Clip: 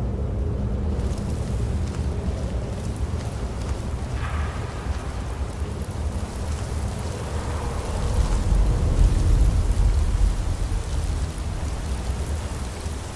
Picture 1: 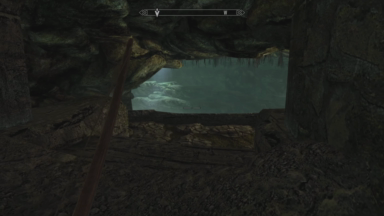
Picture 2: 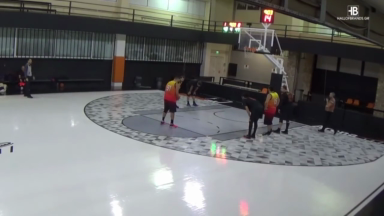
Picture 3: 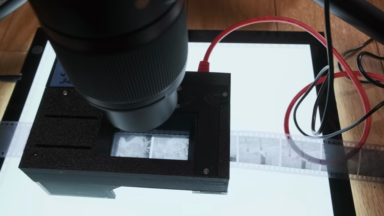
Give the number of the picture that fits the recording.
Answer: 1